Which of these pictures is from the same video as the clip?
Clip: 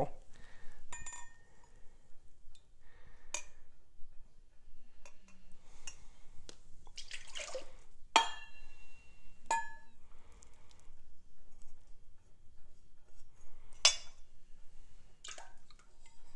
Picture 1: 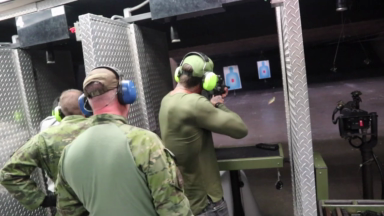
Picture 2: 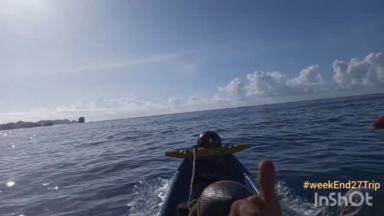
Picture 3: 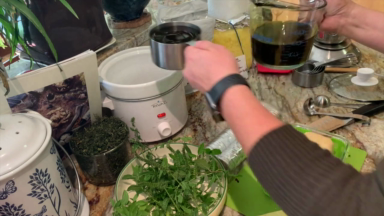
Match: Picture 3